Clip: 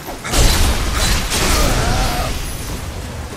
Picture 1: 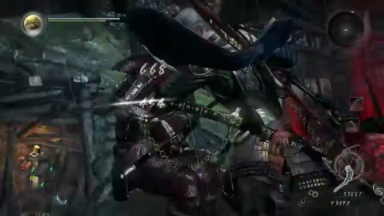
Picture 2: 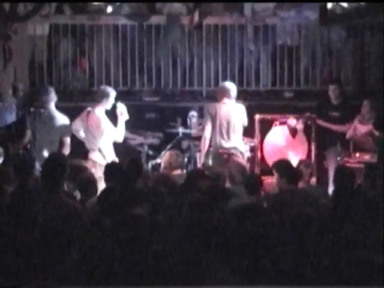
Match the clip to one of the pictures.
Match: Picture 1